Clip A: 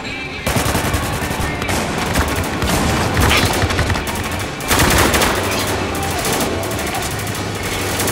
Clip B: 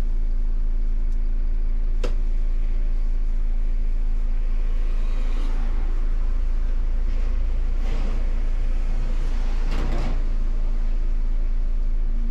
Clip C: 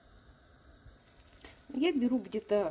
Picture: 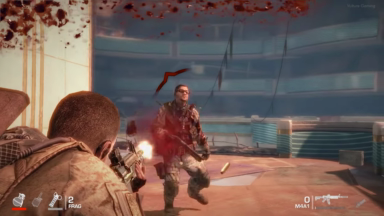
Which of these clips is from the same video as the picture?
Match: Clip A